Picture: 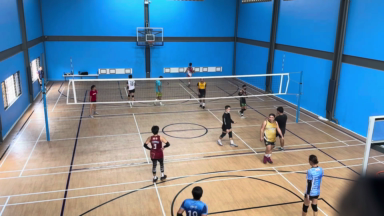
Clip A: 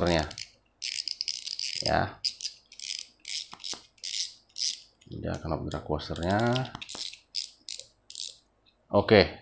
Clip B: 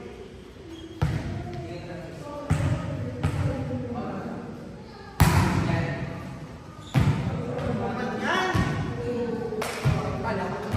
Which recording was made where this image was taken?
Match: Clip B